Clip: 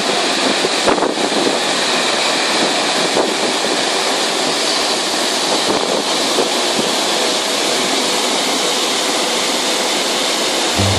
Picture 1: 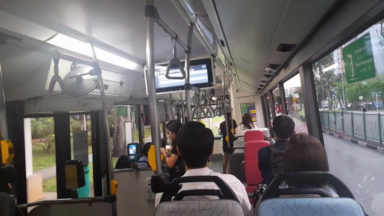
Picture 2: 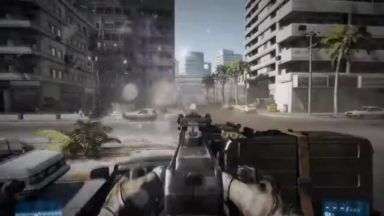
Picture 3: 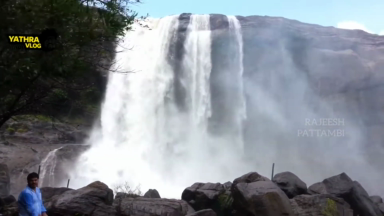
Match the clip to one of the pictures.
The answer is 3